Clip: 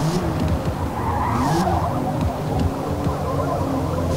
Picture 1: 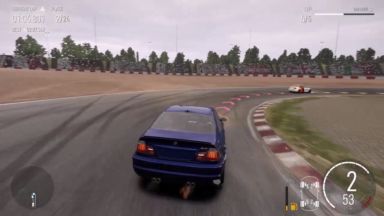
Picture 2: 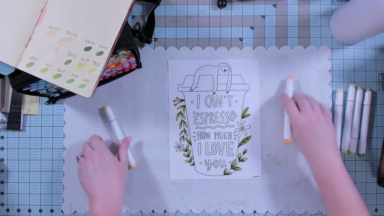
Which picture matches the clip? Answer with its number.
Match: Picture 1